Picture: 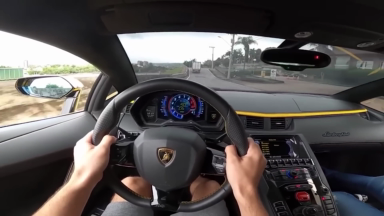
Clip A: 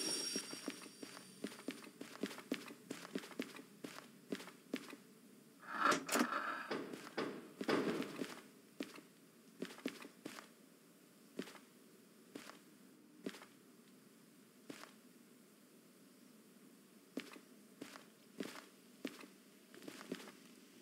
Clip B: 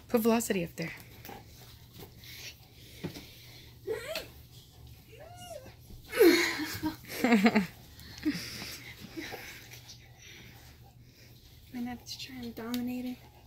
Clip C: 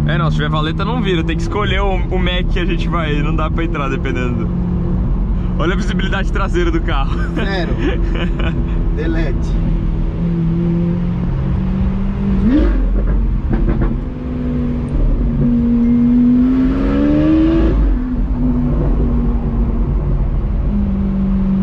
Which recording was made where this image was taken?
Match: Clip C